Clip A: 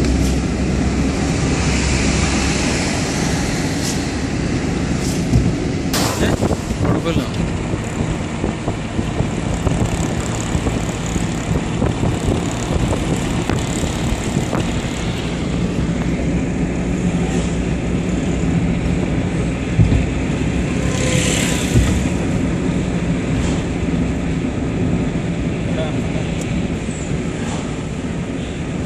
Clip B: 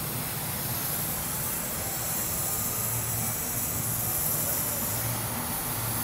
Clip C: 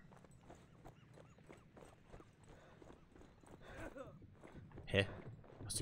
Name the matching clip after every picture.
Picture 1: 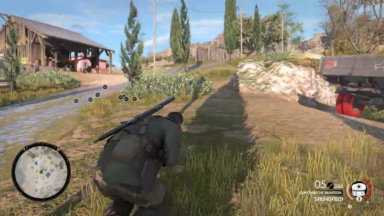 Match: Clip C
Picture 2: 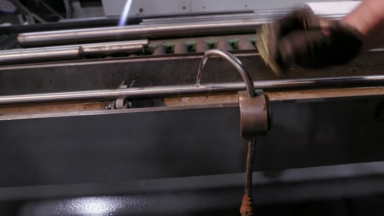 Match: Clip B